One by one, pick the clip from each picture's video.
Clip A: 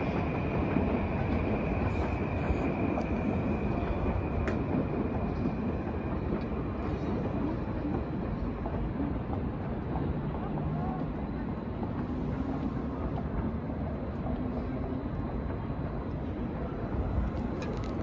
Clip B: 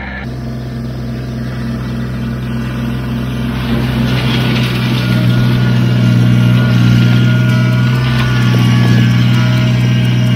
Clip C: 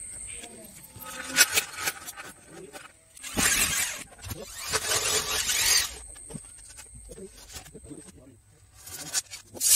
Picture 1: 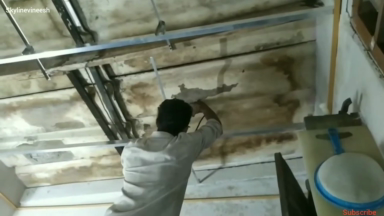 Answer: C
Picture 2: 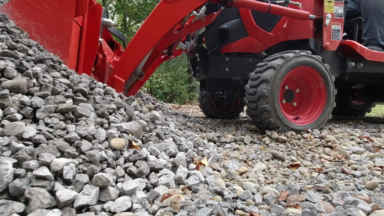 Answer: B